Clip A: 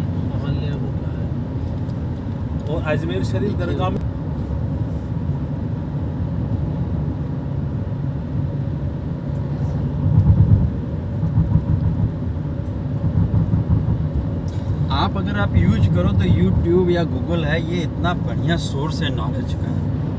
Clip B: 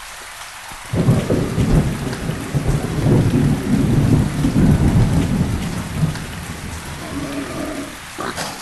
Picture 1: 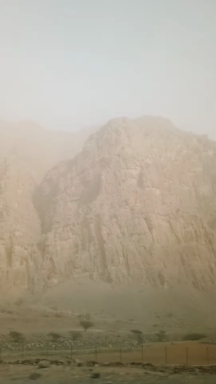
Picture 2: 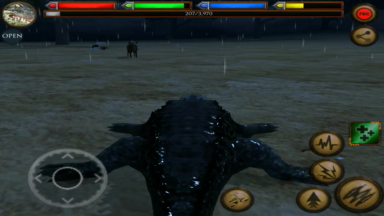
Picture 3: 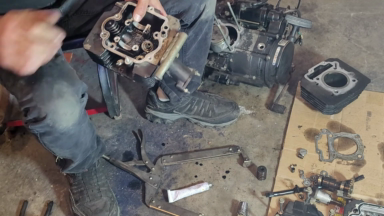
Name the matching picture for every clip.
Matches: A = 1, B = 2